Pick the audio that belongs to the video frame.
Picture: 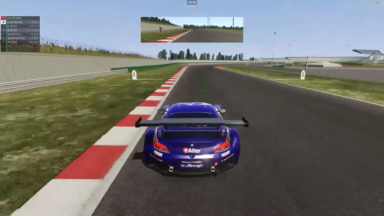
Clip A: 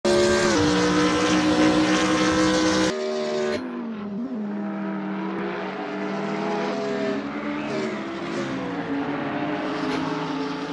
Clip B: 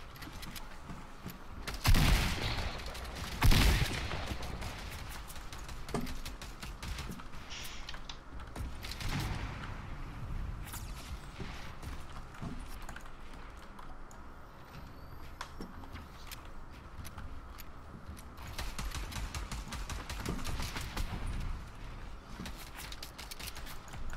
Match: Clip A